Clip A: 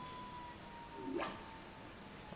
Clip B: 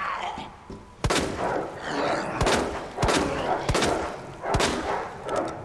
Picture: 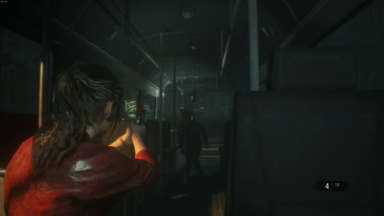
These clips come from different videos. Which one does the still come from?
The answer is B